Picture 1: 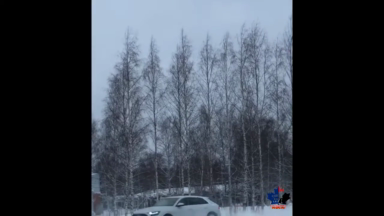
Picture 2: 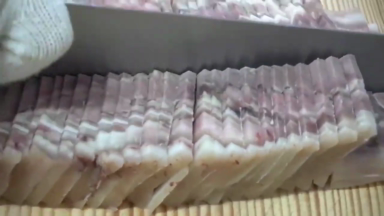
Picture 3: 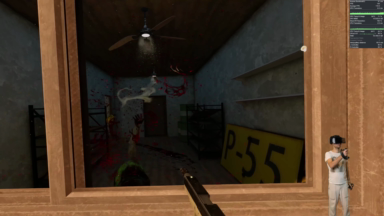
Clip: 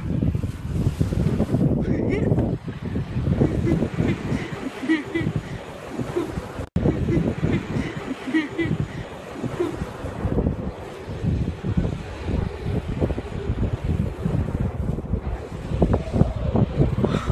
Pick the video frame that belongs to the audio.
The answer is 1